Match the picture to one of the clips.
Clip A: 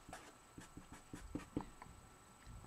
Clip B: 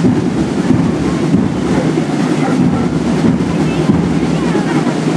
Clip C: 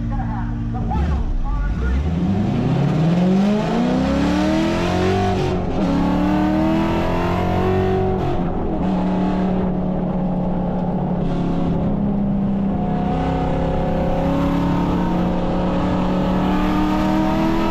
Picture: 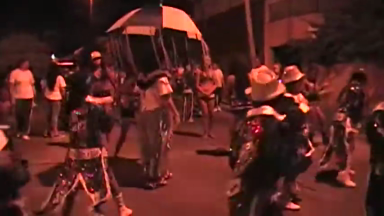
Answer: B